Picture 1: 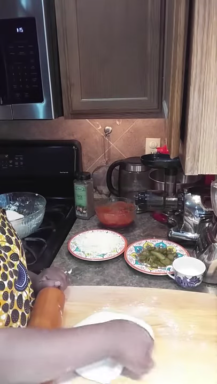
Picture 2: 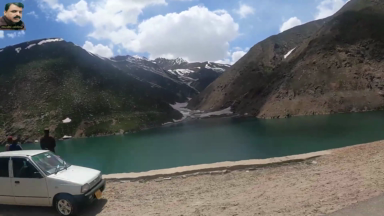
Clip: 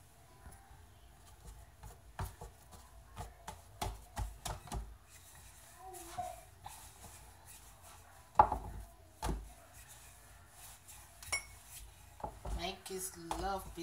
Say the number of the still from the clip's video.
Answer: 1